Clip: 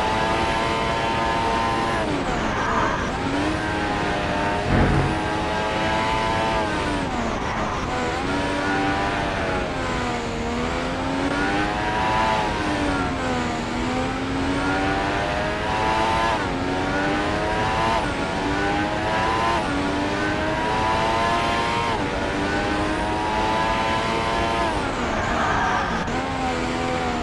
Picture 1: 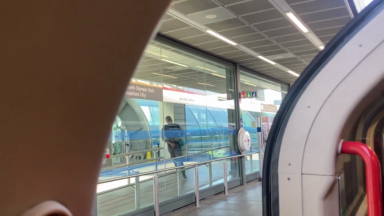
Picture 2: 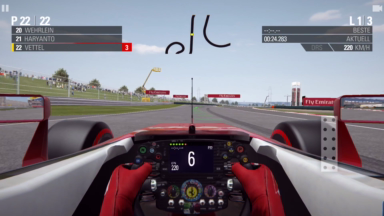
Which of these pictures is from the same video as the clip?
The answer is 2